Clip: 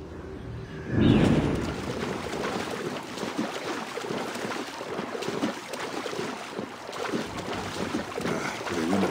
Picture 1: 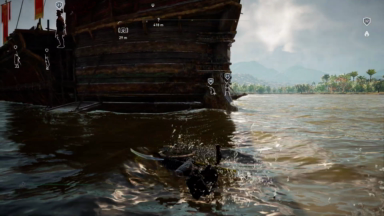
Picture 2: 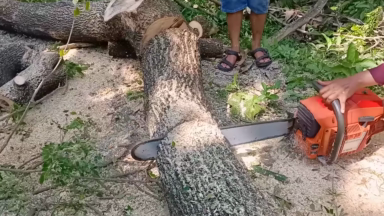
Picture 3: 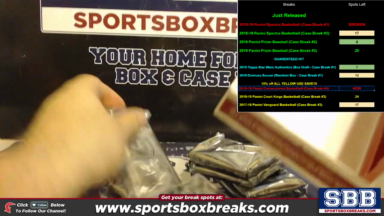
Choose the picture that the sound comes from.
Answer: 1